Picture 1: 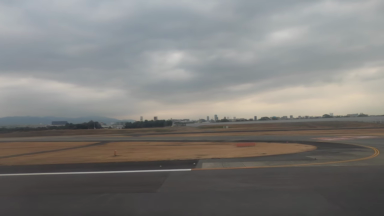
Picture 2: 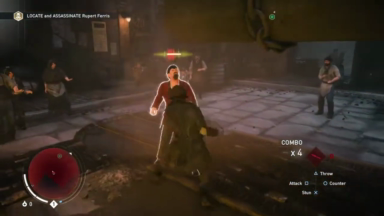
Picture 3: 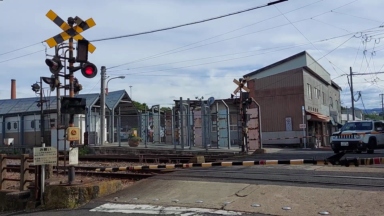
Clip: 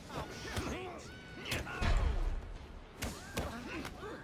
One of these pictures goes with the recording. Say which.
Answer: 2